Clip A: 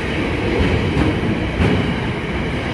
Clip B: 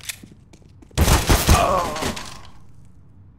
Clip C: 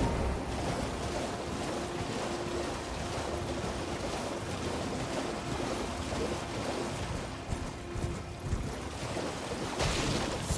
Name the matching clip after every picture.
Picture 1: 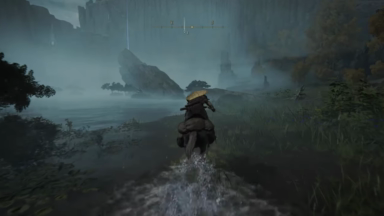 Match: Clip C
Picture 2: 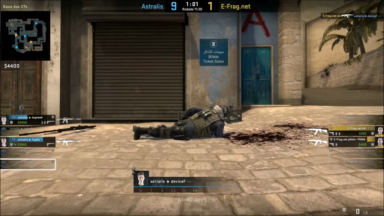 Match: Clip B